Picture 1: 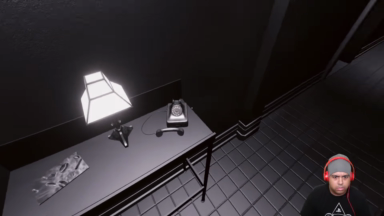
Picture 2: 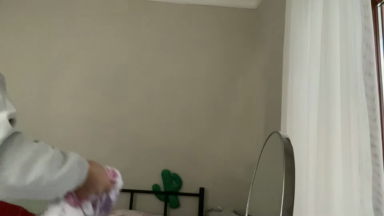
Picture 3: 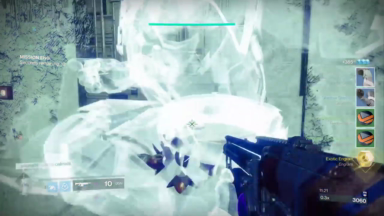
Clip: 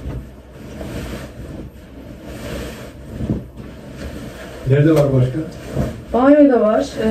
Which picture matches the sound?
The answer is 2